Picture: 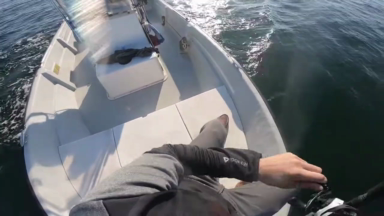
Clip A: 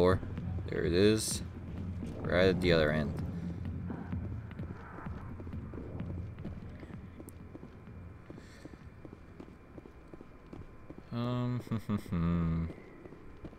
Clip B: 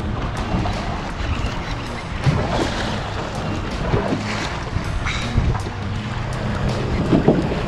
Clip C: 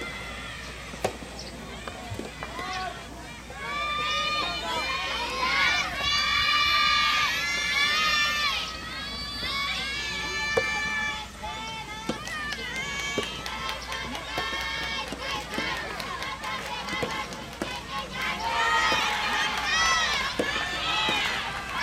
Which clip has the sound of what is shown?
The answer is B